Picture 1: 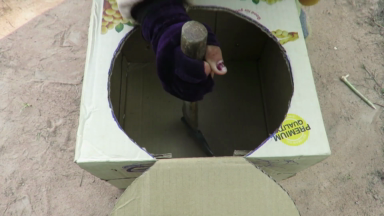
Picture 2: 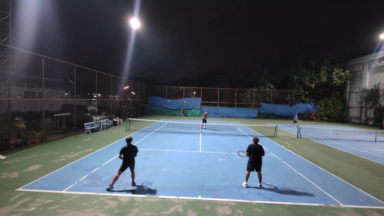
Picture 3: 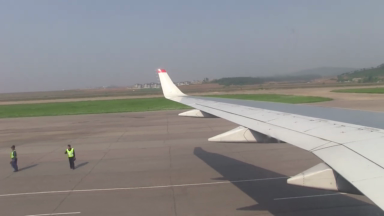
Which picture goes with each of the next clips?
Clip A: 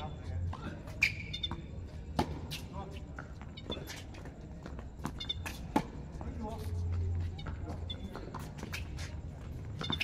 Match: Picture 2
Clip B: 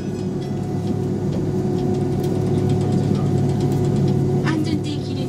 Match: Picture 3